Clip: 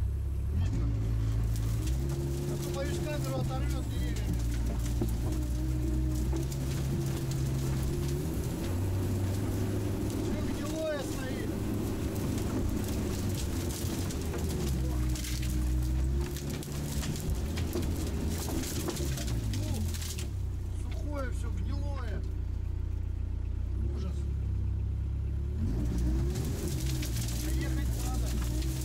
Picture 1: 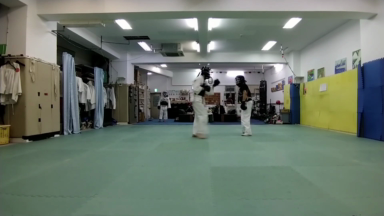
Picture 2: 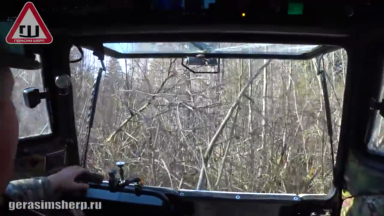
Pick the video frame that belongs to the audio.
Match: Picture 2